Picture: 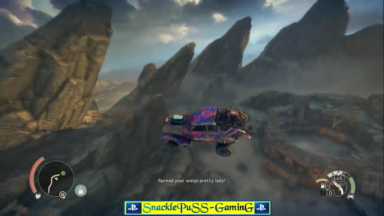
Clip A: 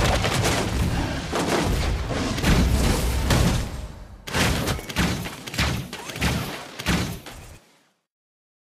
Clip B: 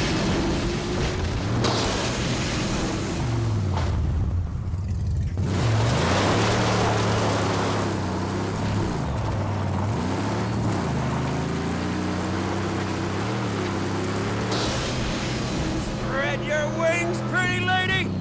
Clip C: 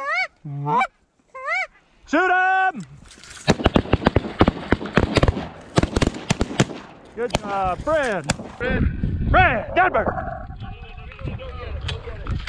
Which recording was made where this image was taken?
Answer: B